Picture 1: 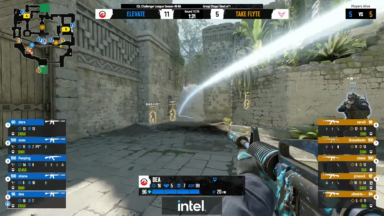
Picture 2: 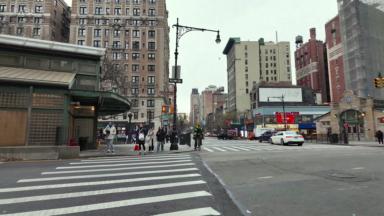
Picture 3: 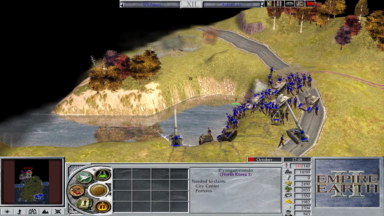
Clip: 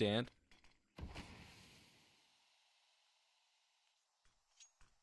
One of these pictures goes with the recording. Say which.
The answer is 1